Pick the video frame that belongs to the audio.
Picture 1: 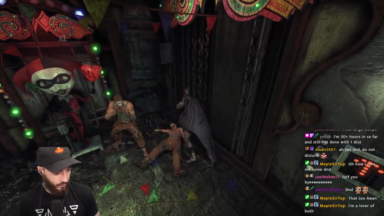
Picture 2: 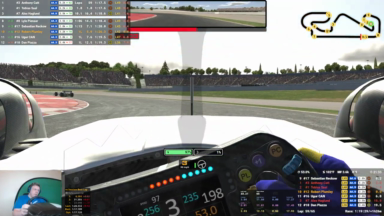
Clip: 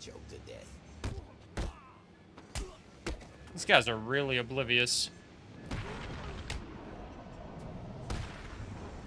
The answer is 1